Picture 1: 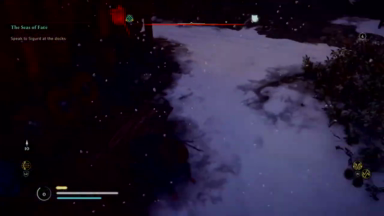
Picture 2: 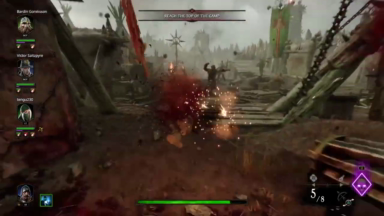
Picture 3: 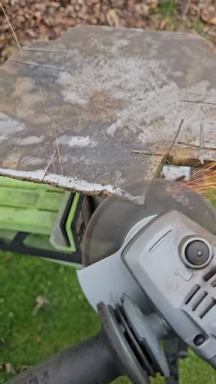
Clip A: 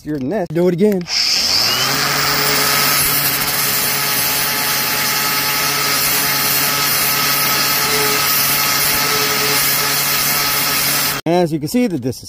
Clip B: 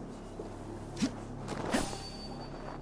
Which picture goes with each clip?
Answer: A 3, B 1